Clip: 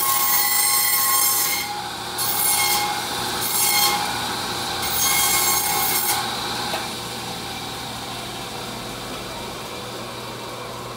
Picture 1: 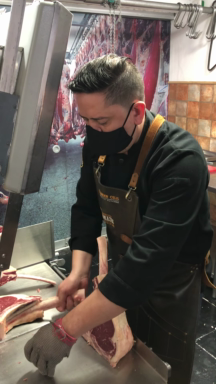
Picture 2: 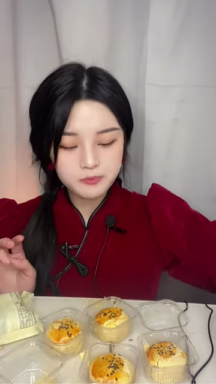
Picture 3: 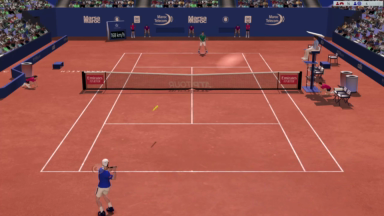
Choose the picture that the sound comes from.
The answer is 1